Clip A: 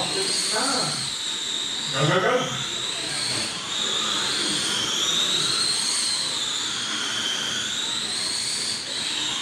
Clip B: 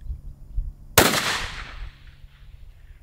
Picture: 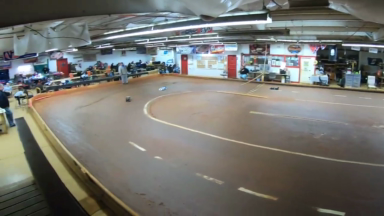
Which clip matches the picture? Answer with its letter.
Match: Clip A